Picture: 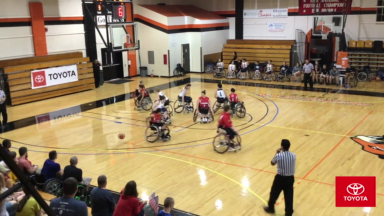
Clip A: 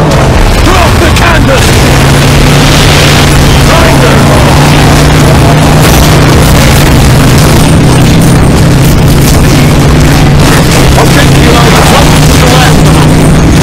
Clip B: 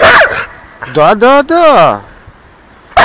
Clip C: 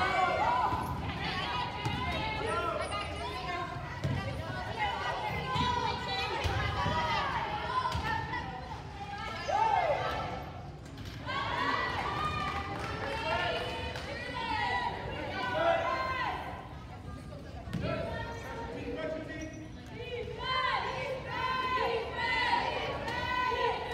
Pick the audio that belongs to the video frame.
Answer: C